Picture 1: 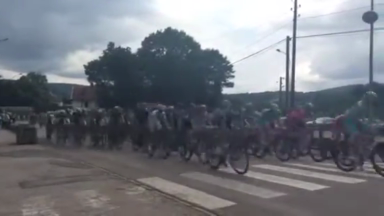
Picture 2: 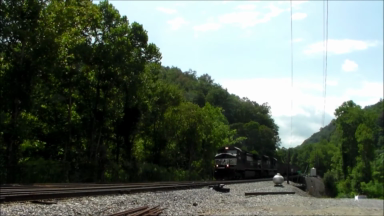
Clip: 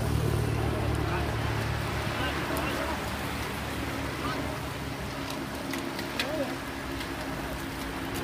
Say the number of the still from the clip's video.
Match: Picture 1